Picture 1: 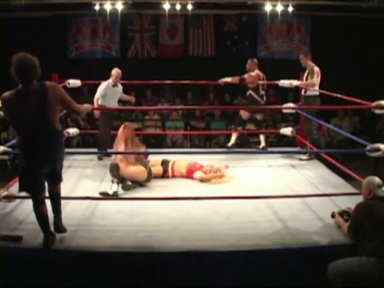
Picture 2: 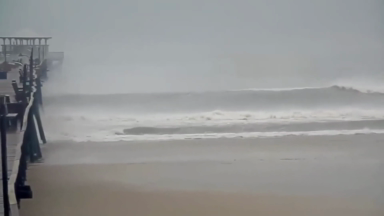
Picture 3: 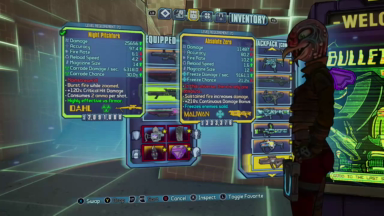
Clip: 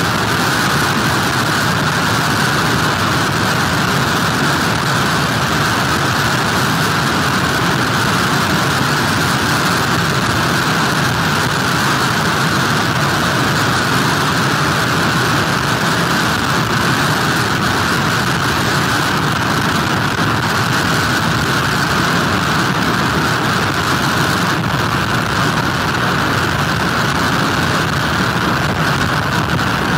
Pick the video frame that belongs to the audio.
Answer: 2